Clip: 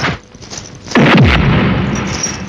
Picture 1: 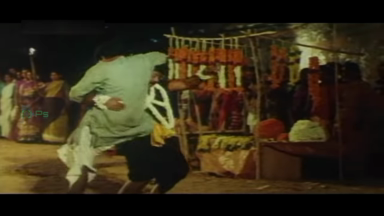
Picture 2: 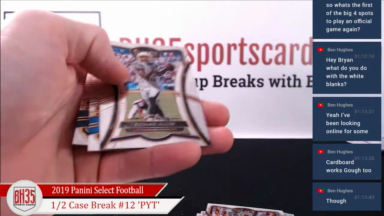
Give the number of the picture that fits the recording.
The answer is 1